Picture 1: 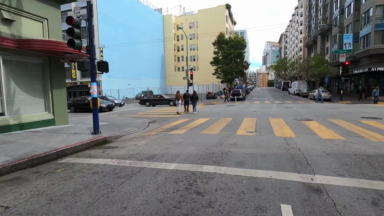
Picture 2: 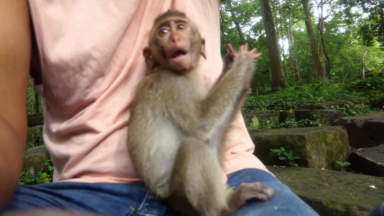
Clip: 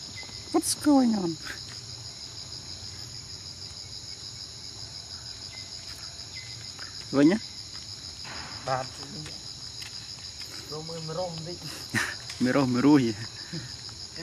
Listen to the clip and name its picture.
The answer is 2